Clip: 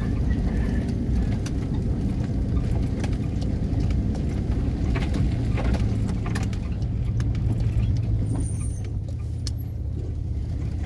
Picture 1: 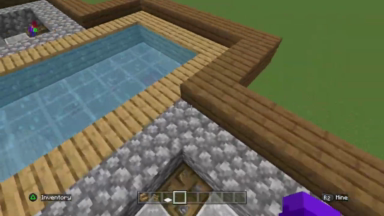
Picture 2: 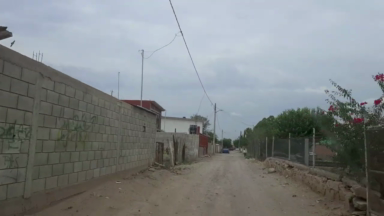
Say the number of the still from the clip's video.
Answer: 2